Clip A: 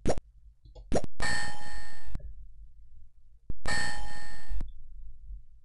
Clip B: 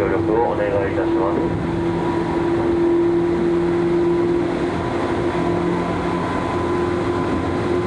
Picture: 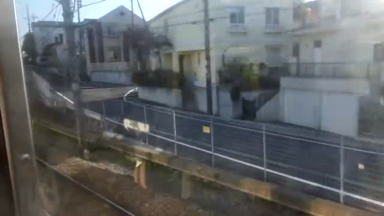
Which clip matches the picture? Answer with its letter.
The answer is B